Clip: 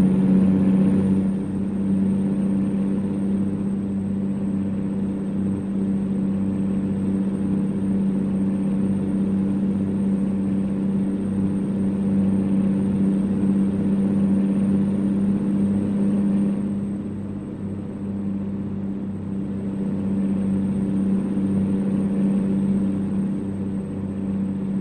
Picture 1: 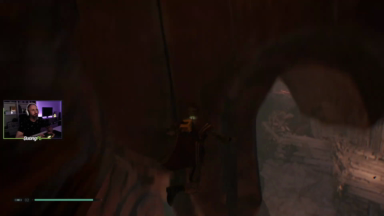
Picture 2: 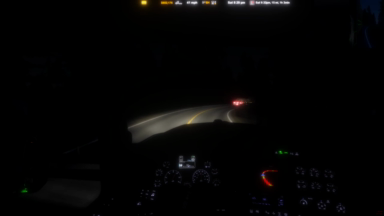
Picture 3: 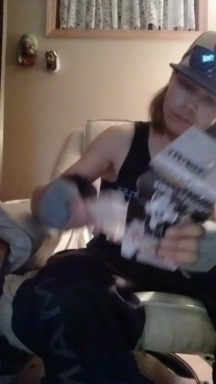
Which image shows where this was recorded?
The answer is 2